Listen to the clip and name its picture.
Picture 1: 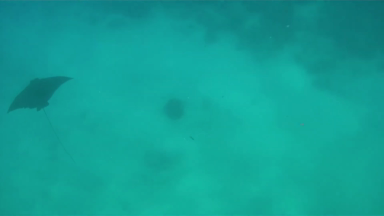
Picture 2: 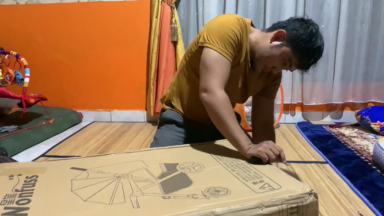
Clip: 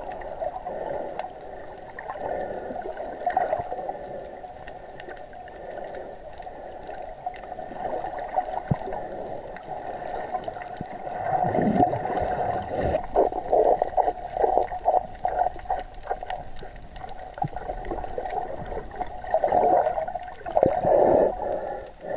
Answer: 1